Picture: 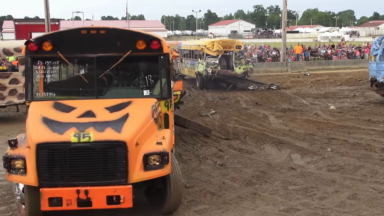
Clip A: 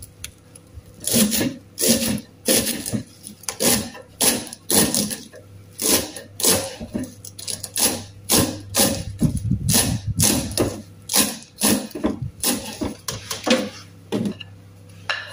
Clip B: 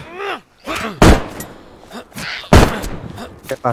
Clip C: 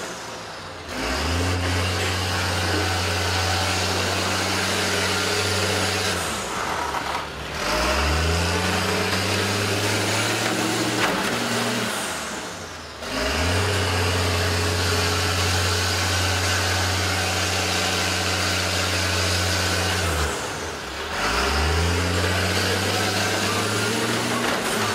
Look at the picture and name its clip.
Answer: C